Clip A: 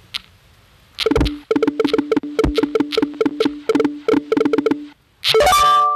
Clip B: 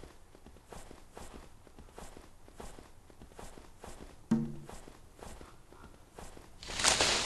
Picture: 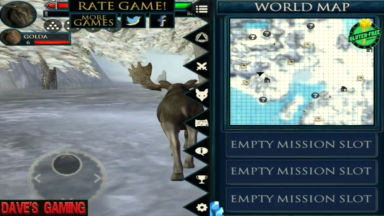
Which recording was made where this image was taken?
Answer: B